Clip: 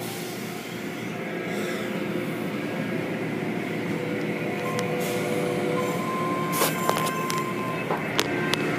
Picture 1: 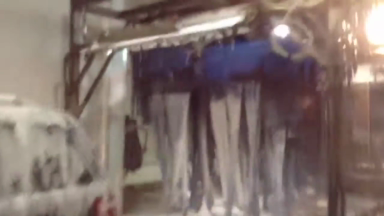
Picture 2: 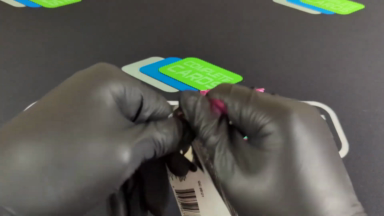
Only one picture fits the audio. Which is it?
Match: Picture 1